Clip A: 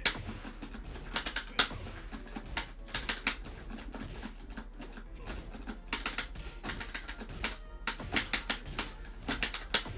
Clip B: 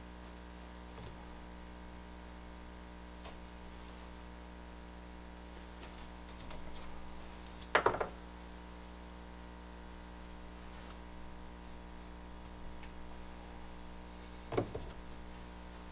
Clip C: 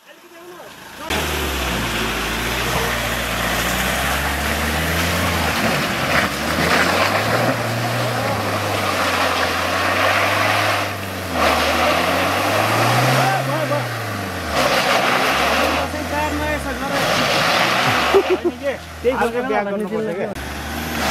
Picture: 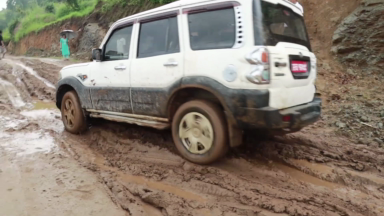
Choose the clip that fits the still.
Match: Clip C